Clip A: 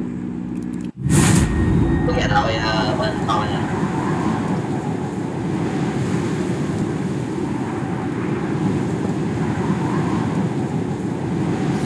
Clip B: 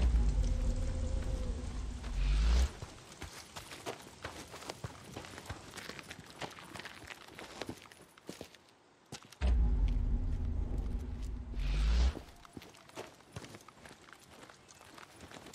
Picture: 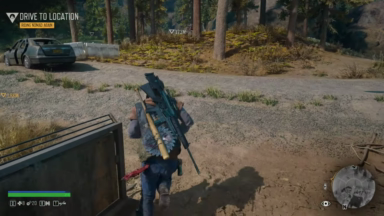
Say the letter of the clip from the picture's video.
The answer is B